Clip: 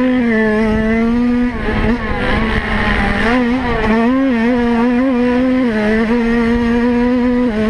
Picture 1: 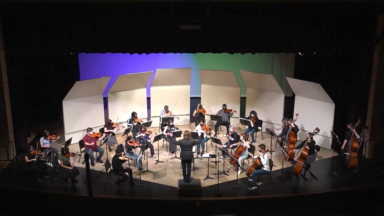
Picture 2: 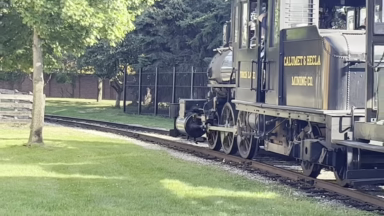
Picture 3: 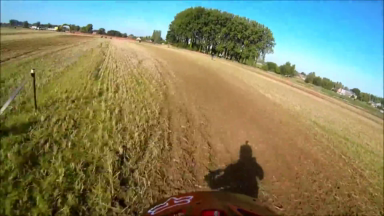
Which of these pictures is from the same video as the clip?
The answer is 3